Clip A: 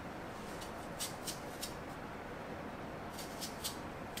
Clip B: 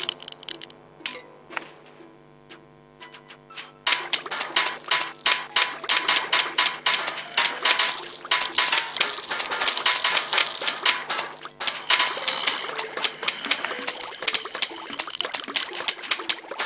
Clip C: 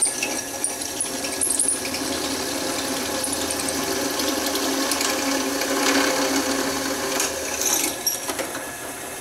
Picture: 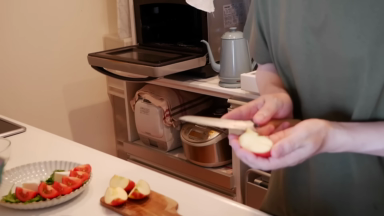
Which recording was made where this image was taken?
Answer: A